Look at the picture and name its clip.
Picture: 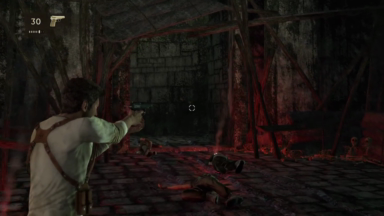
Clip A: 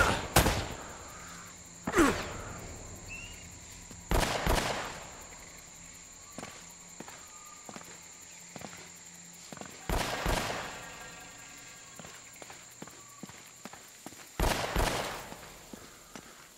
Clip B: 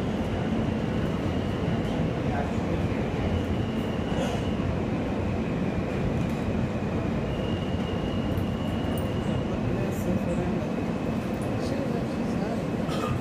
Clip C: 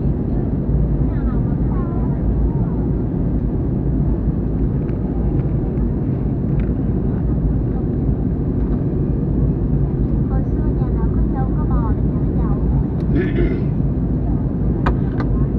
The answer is A